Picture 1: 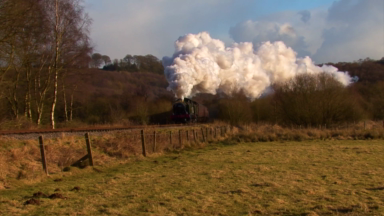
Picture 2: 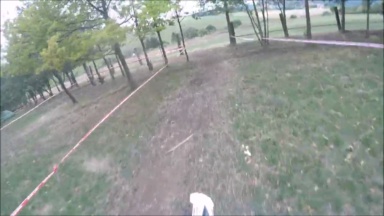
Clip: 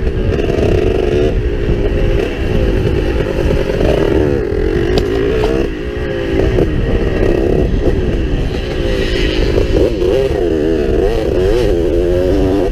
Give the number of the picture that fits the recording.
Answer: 2